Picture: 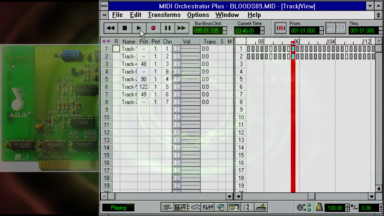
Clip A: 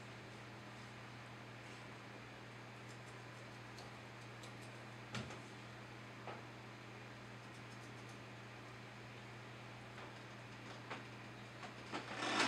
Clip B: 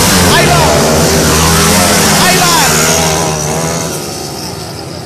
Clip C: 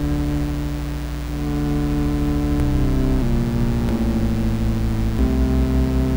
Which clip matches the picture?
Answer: C